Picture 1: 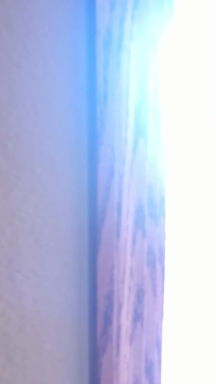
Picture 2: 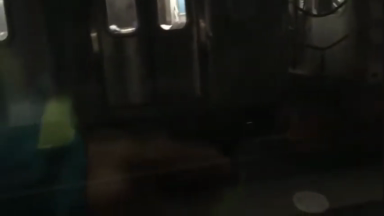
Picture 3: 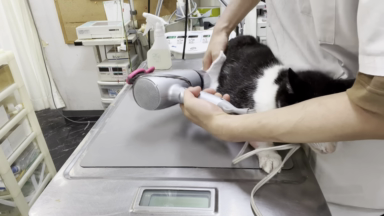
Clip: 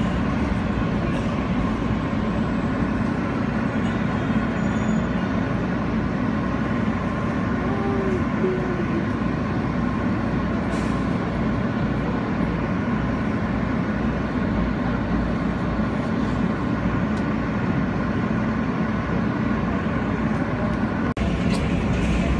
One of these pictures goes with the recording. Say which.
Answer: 2